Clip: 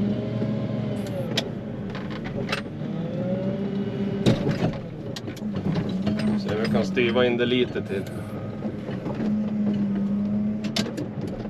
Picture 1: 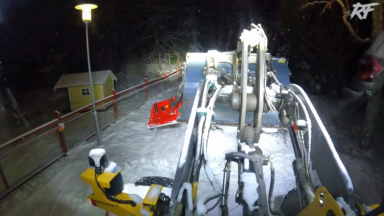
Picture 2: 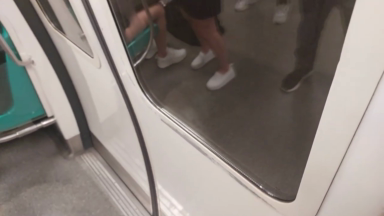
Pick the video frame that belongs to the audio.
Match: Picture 1